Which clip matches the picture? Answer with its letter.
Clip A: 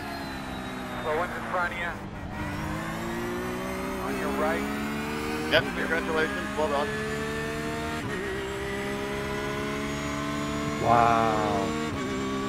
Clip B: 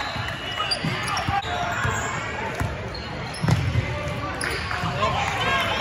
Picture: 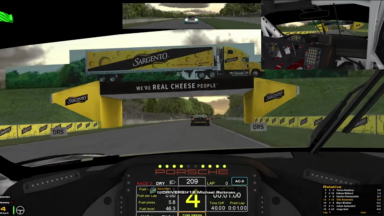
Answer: A